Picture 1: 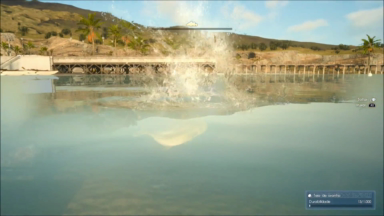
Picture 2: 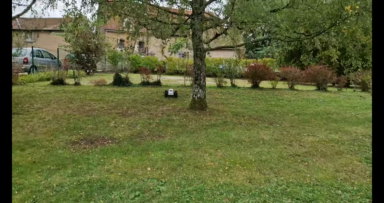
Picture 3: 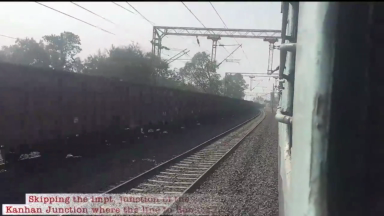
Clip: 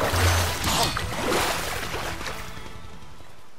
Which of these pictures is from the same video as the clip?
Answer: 1